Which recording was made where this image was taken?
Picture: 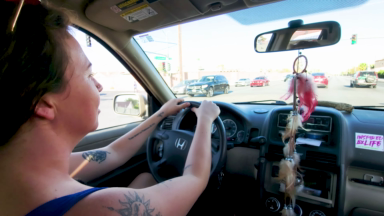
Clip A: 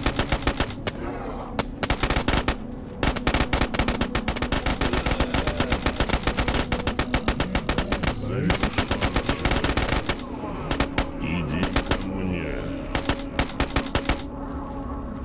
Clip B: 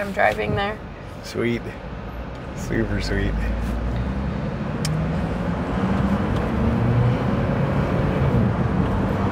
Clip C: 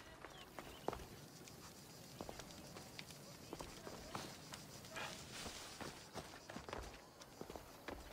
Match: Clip B